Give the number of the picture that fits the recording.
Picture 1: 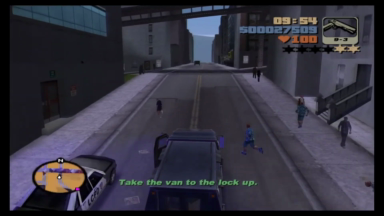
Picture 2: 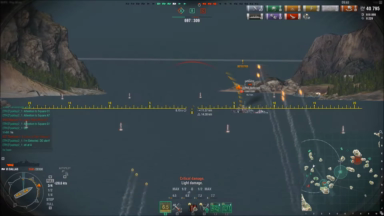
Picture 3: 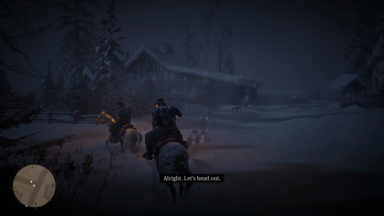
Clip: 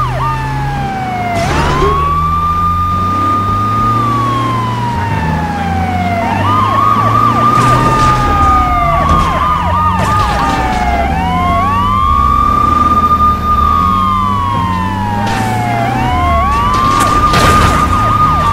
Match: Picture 1